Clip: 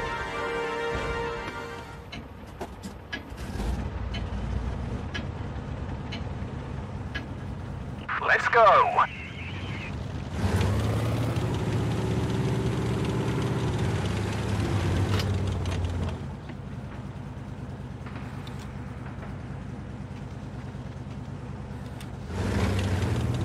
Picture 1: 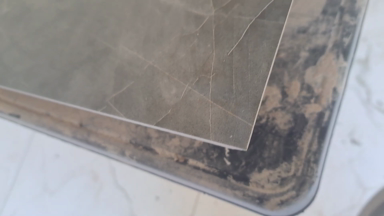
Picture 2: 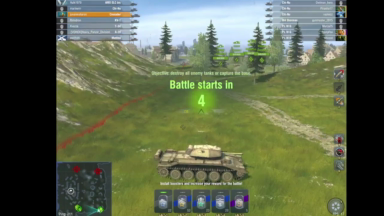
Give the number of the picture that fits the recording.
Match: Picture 2